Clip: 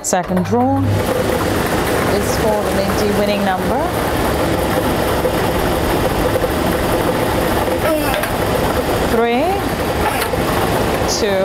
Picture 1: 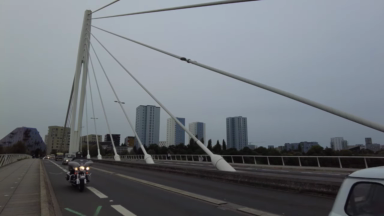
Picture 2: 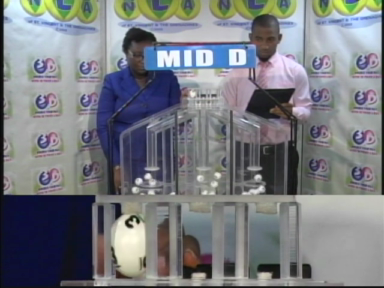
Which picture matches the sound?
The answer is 2